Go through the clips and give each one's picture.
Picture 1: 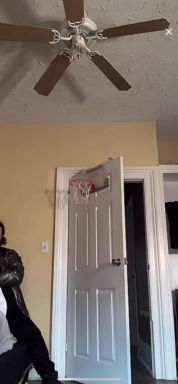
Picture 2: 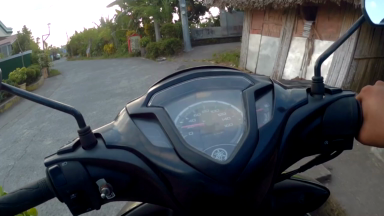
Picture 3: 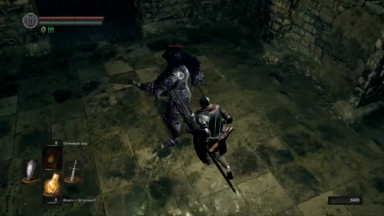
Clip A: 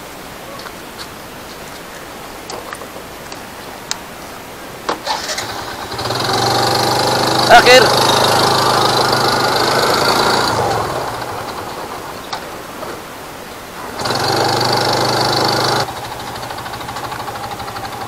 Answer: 2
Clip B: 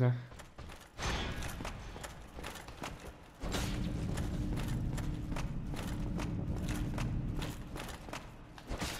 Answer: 3